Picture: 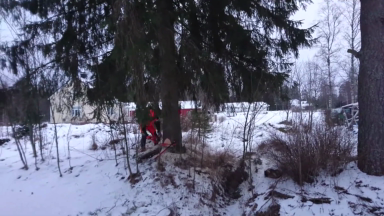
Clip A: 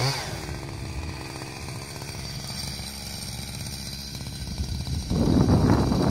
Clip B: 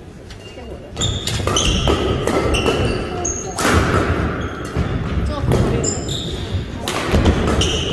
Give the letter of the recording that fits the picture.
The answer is A